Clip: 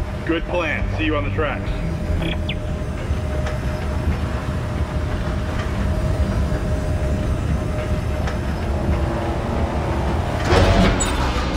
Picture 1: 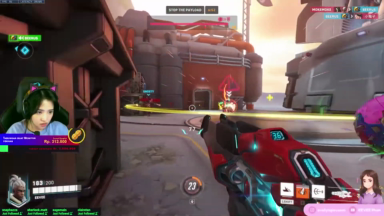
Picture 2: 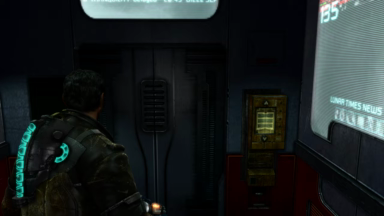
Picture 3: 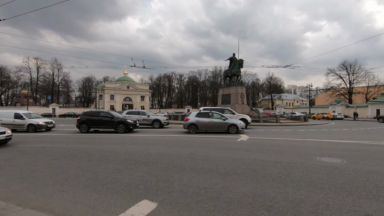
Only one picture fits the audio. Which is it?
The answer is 2